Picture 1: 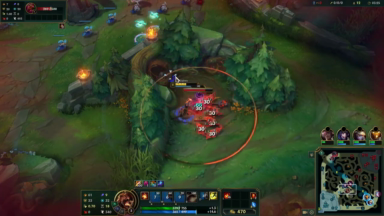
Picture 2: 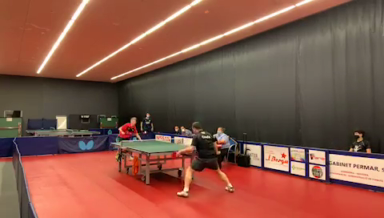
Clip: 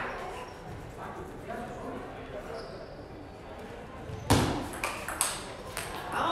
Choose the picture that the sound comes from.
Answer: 2